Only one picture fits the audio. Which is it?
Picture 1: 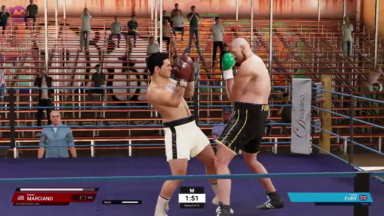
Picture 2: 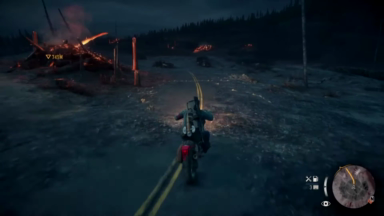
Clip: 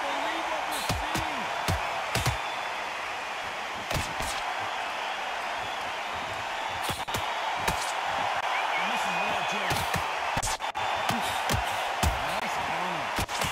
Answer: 1